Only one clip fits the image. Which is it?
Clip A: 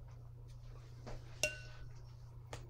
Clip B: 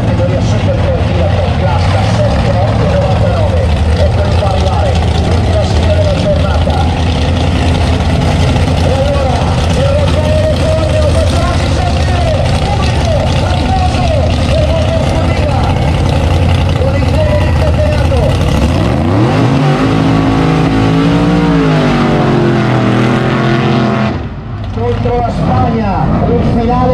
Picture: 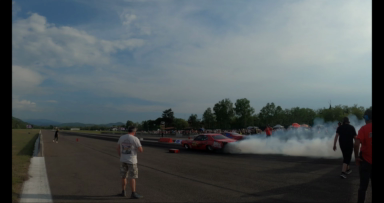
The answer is B